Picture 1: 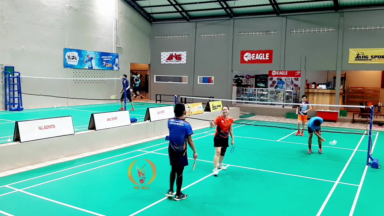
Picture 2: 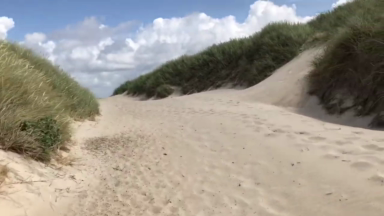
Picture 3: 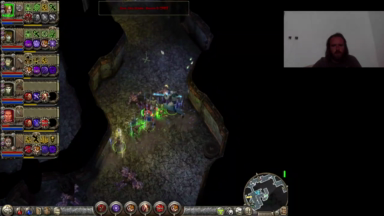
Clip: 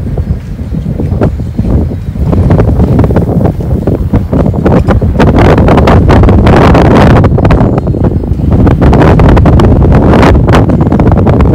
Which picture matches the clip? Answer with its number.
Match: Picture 2